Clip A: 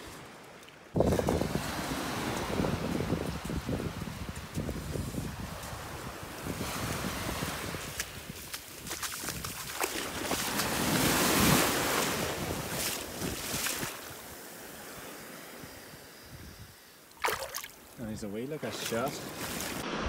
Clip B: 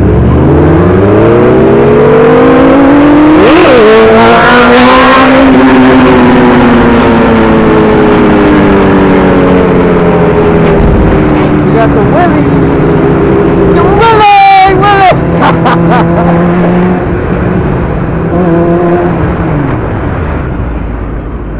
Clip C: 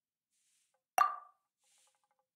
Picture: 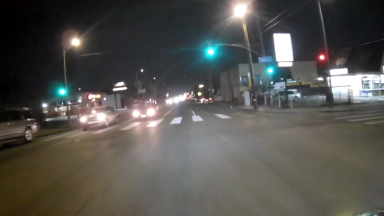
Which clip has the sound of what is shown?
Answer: B